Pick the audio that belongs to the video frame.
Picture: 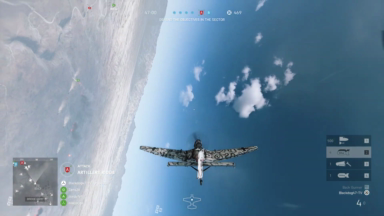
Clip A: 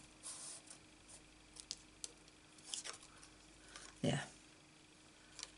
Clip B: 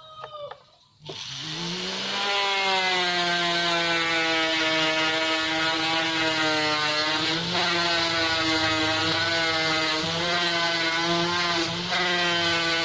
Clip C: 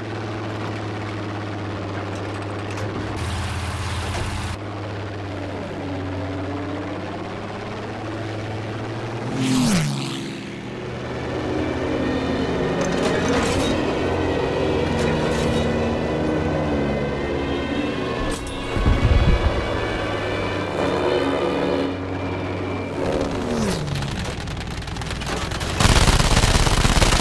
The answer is C